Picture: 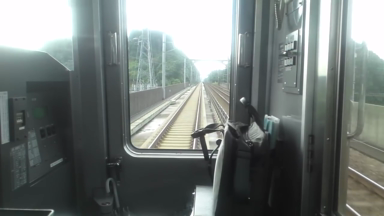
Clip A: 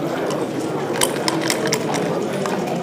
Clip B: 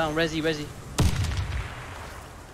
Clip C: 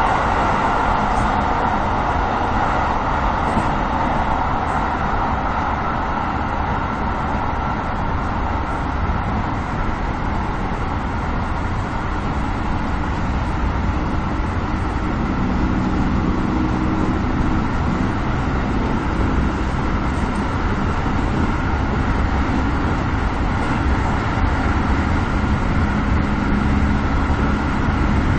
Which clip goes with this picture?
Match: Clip C